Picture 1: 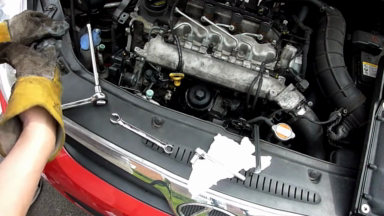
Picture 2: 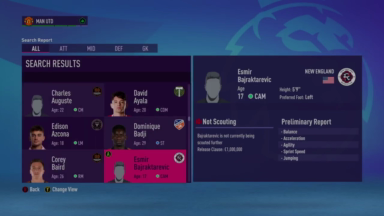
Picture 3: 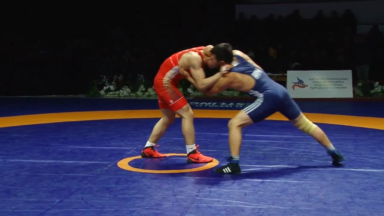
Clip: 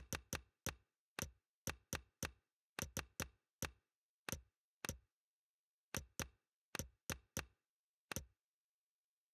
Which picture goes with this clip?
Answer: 2